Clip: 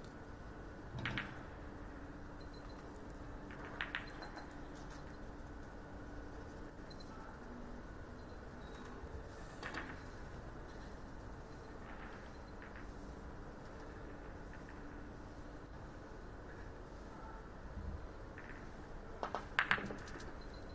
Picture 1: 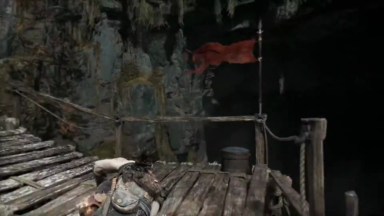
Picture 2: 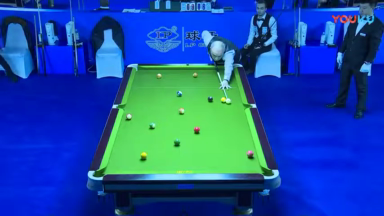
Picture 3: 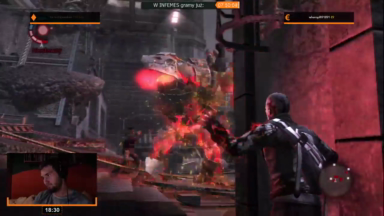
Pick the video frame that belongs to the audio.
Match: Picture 2